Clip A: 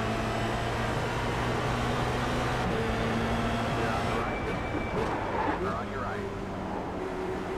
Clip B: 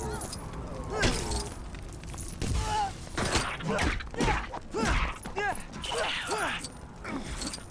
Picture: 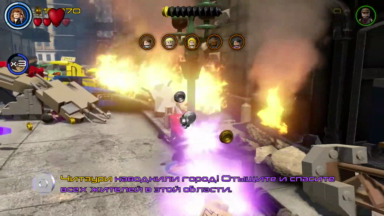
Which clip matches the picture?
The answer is B